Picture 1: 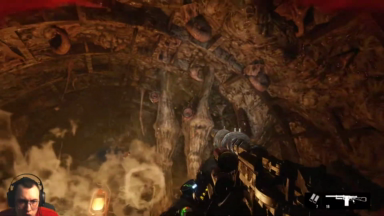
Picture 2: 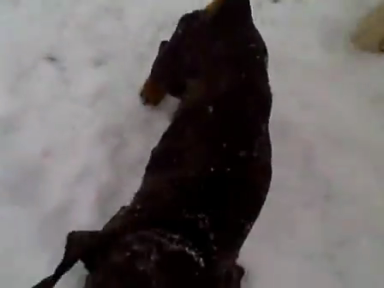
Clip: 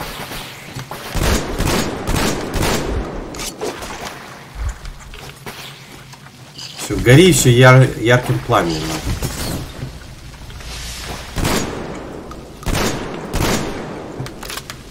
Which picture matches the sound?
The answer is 1